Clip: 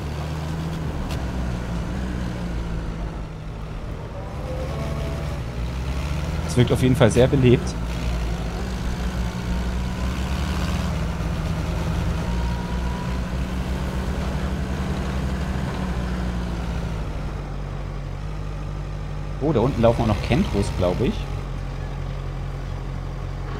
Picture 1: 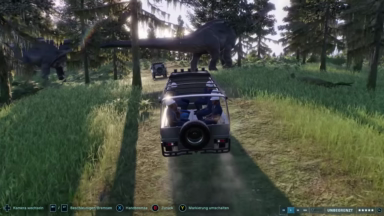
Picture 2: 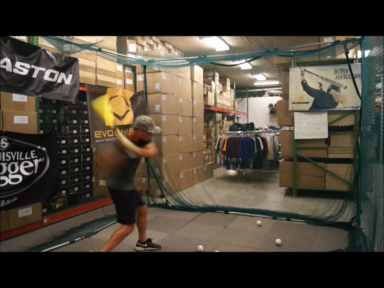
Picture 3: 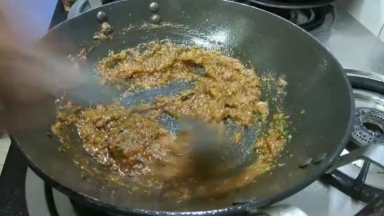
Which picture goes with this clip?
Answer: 1